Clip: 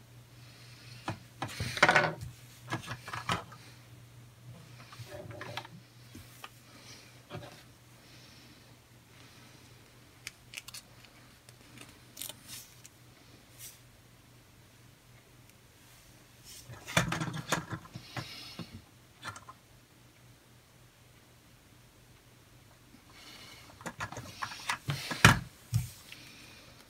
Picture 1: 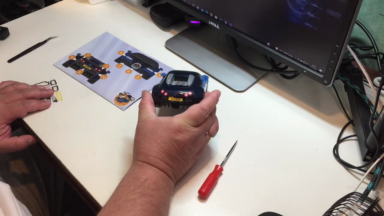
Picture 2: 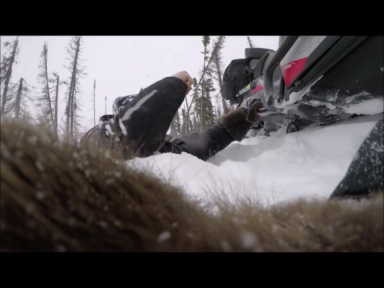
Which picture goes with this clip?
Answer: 1